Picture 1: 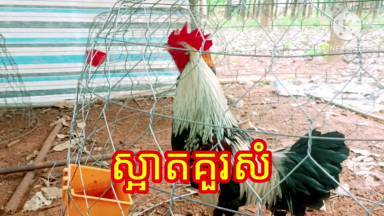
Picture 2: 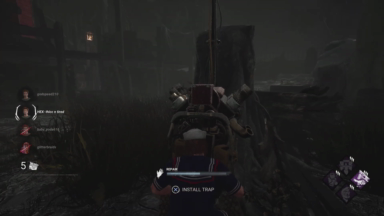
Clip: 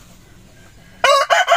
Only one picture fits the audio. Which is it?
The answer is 1